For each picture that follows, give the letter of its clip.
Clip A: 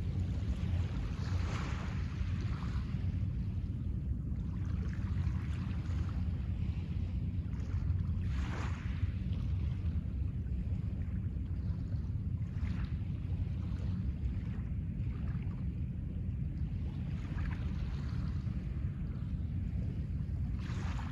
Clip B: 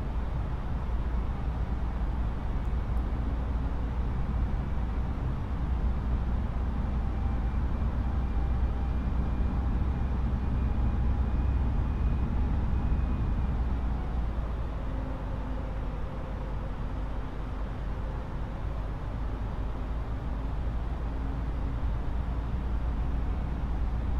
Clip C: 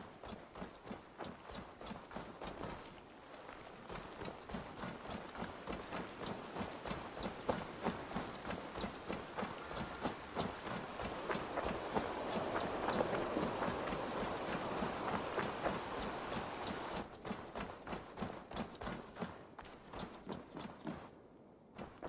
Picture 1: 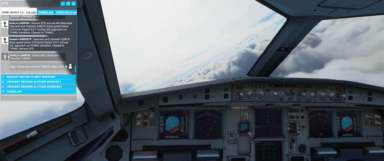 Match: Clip B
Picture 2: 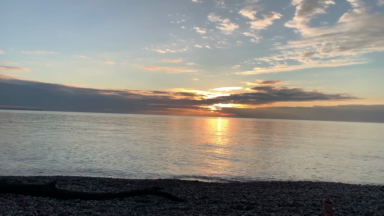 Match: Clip A